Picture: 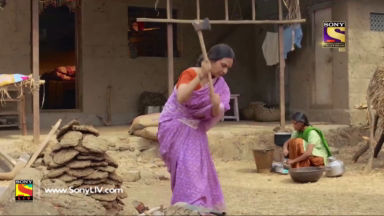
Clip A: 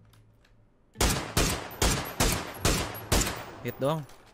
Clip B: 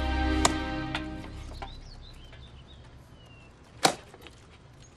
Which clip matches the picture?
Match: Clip B